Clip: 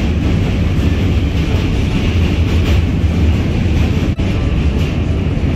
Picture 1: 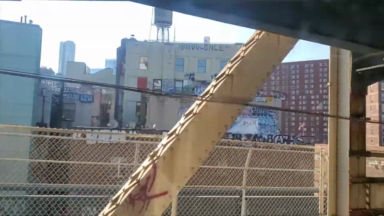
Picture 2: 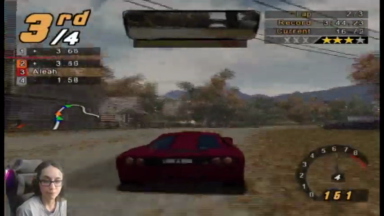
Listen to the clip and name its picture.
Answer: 1